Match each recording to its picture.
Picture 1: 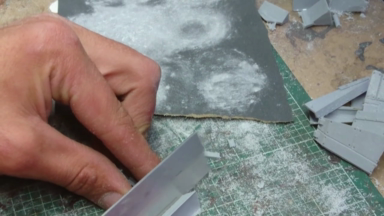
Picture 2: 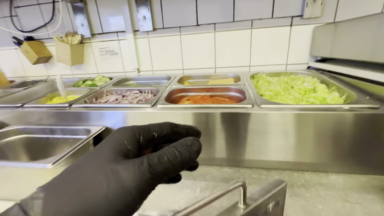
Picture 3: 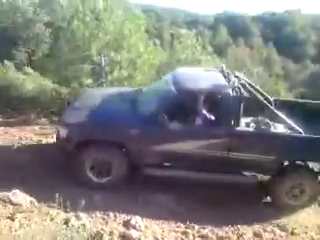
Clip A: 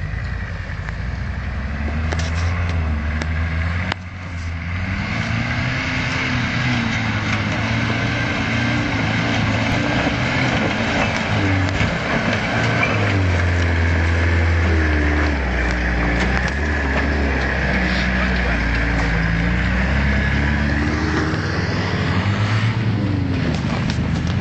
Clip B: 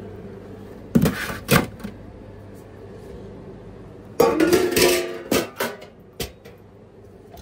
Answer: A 3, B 2